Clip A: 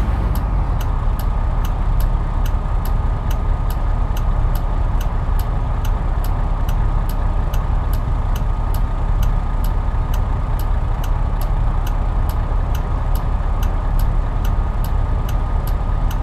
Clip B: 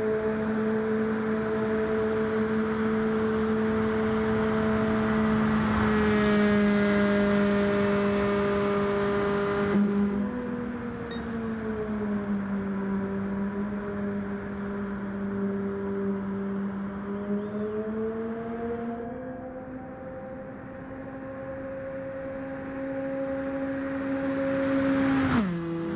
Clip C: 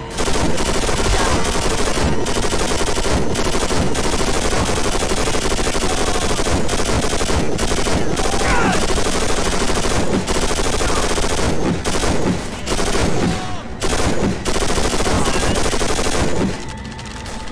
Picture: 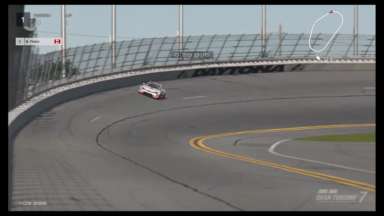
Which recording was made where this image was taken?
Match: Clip B